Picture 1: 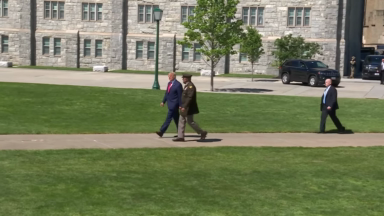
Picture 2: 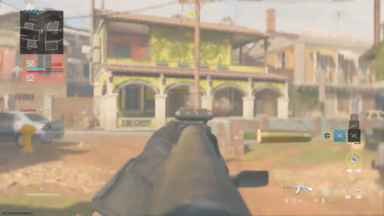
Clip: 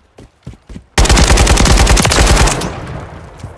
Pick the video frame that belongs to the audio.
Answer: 2